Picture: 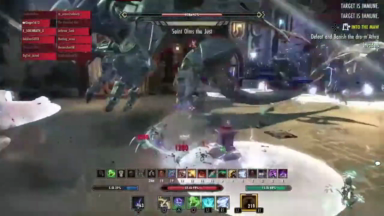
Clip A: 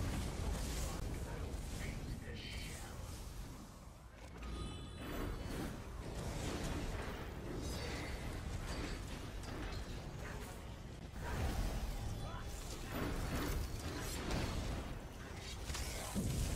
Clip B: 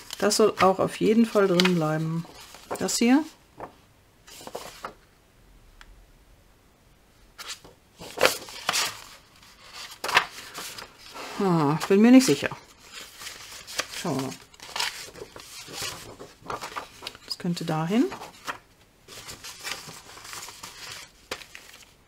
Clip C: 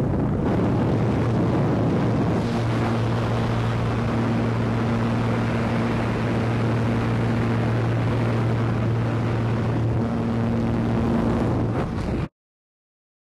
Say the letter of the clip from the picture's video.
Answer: A